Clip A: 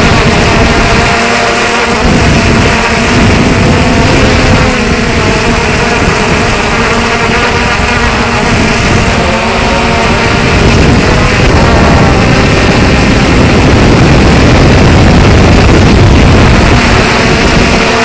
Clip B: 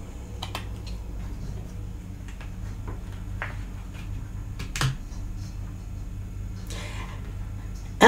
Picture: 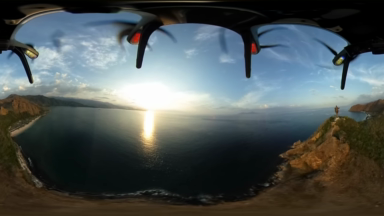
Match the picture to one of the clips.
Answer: A